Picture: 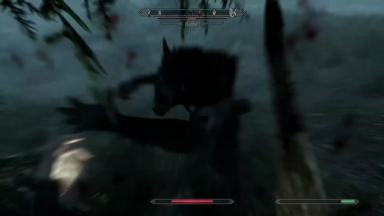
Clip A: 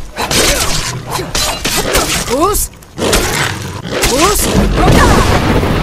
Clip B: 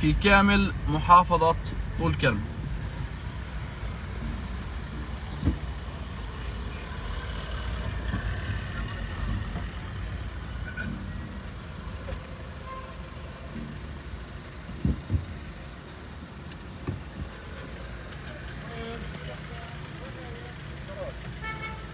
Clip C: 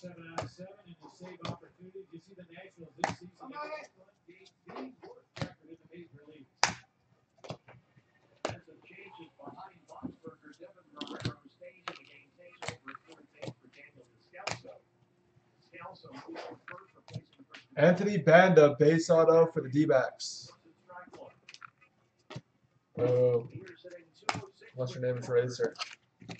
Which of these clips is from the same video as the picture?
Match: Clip A